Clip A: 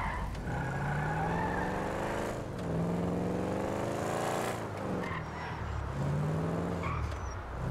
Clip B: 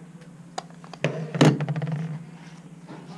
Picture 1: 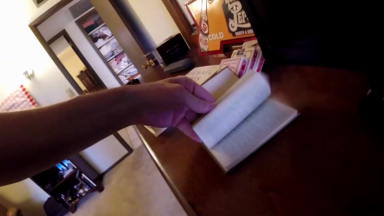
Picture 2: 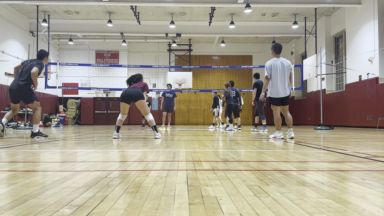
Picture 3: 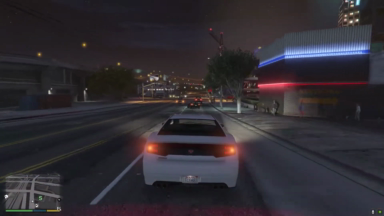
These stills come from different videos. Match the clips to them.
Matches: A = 3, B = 1